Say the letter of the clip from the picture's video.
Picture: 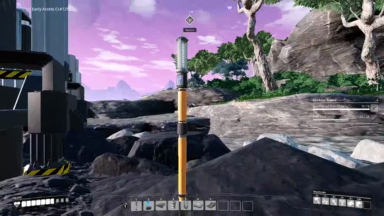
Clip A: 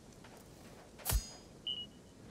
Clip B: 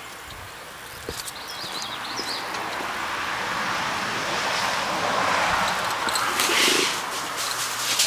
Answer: A